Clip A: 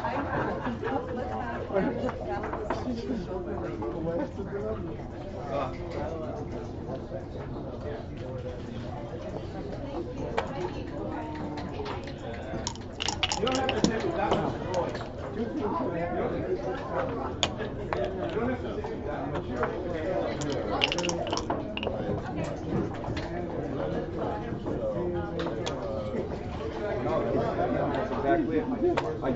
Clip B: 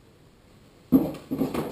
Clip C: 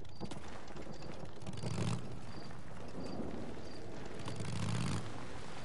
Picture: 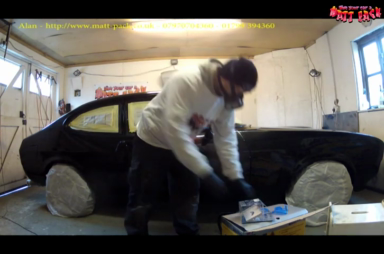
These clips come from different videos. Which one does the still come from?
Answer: B